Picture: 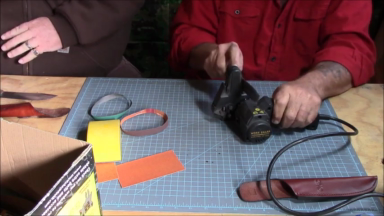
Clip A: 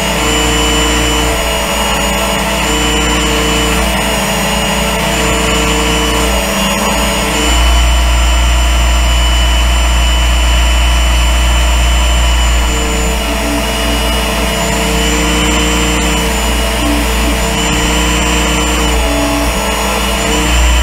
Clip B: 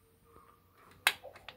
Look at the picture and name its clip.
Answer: A